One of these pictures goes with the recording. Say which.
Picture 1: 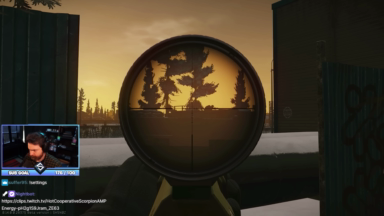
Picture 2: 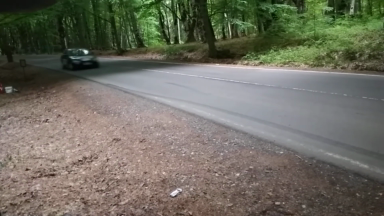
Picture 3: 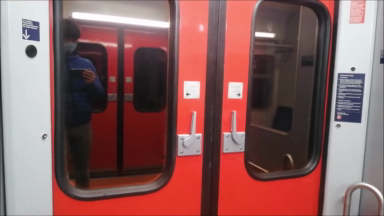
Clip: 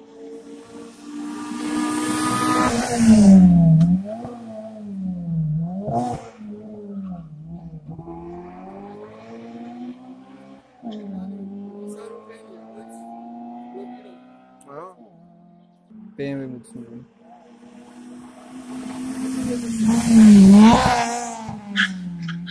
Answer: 2